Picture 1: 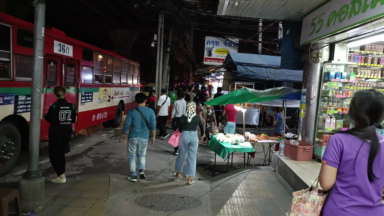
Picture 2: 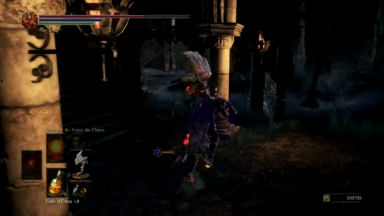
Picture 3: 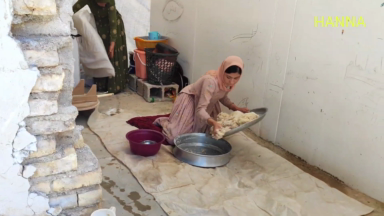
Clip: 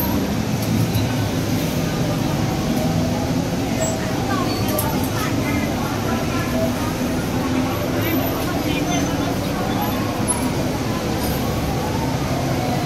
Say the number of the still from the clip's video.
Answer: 1